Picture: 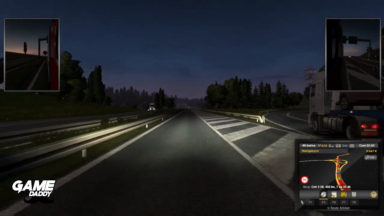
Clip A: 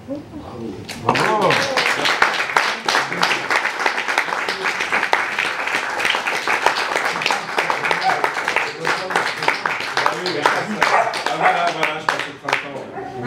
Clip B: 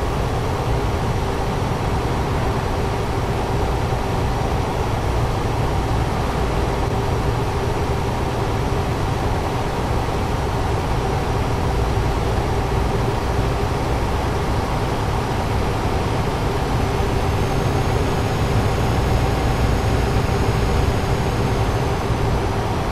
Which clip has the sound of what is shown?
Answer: B